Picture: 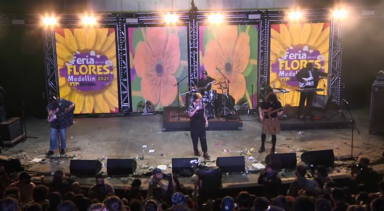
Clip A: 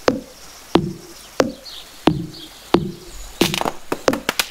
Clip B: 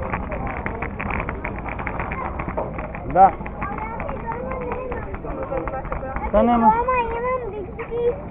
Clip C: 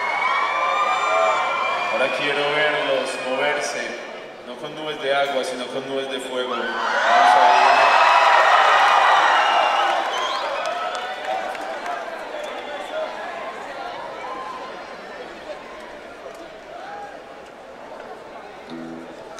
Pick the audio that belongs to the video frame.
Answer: C